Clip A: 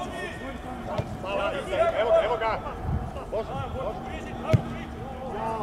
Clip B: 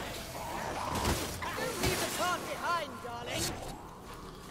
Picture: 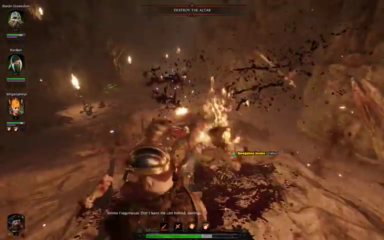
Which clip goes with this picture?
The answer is B